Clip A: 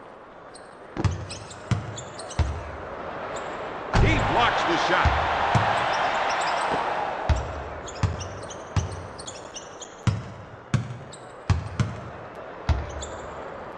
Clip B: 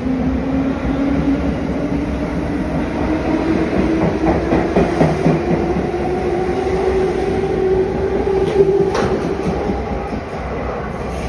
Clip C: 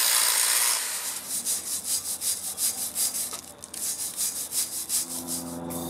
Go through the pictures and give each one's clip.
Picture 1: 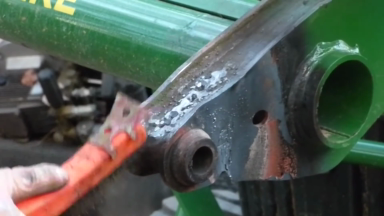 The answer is C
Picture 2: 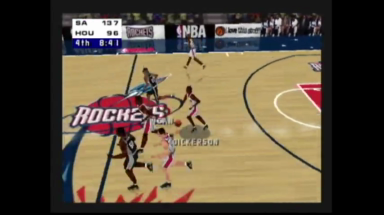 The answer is A